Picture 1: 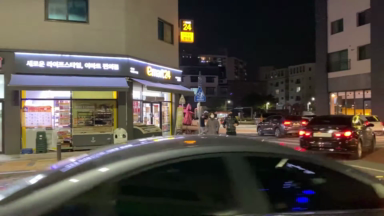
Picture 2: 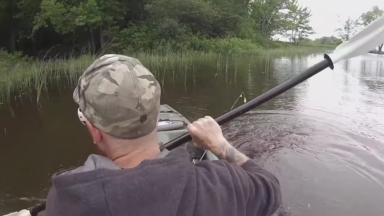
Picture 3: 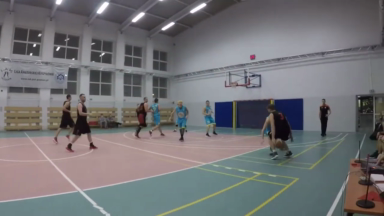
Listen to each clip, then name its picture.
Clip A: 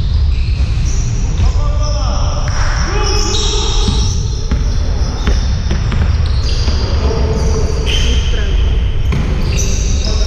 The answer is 3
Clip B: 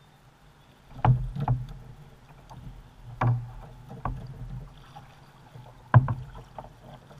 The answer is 2